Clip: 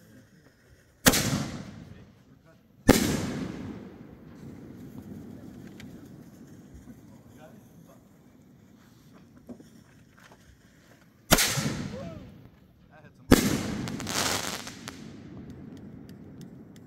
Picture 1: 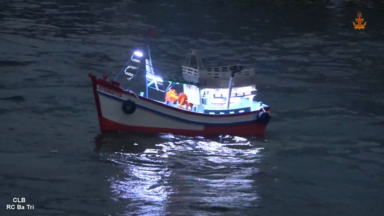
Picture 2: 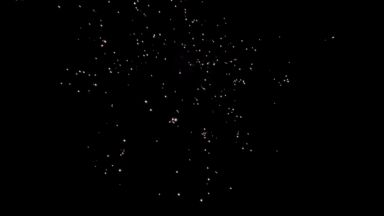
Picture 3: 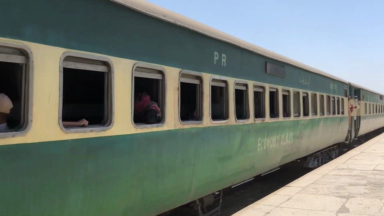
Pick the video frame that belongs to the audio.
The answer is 2